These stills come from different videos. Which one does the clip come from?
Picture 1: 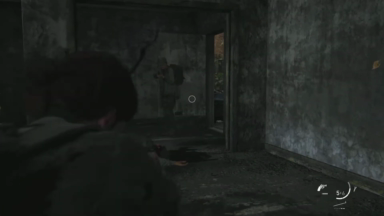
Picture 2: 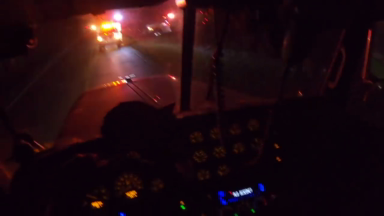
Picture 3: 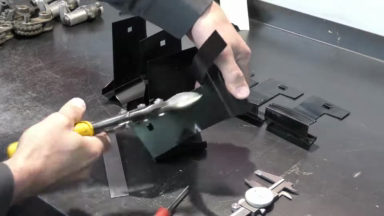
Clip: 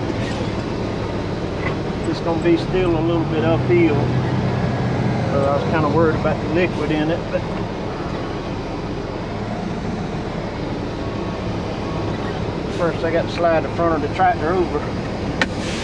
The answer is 2